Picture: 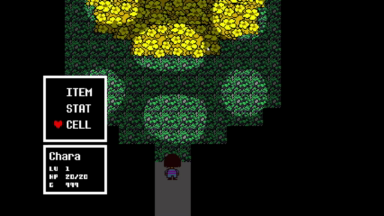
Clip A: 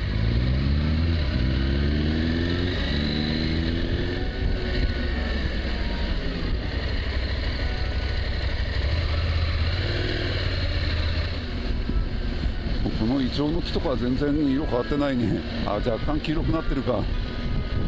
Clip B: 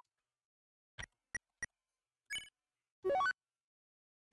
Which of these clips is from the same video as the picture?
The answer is B